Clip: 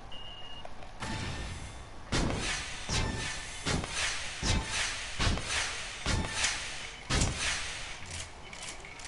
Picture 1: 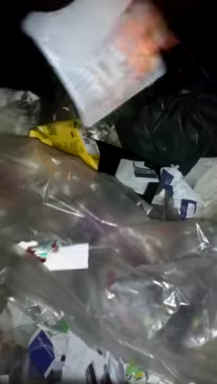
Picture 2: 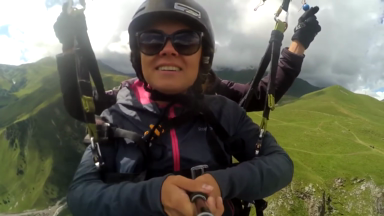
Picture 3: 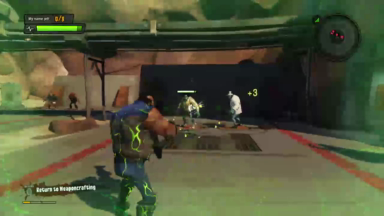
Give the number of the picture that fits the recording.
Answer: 3